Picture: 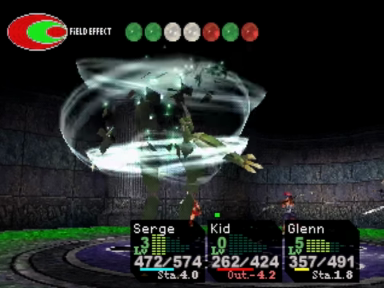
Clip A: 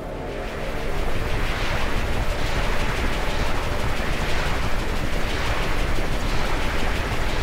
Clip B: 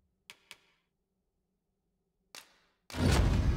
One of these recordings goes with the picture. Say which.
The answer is A